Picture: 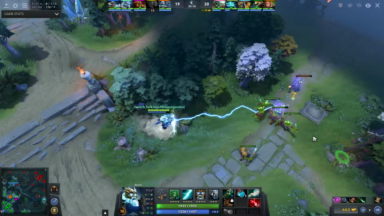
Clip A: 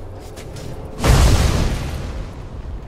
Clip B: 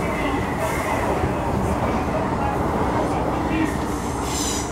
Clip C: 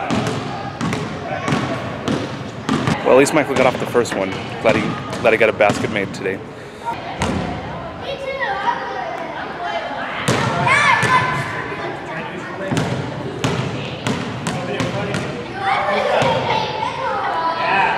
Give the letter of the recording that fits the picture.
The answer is A